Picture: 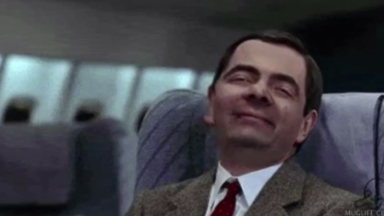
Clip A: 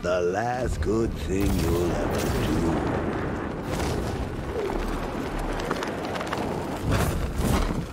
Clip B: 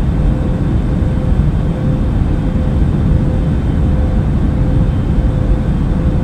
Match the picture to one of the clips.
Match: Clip B